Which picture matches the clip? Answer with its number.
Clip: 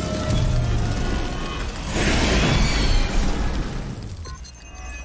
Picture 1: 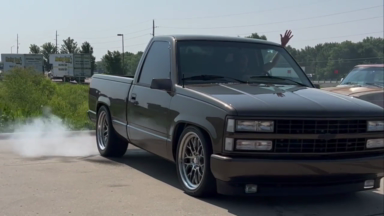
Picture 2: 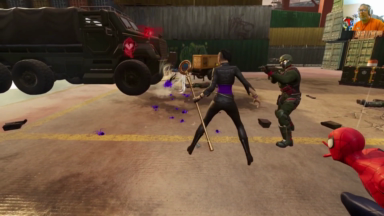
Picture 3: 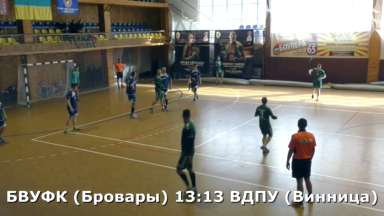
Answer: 2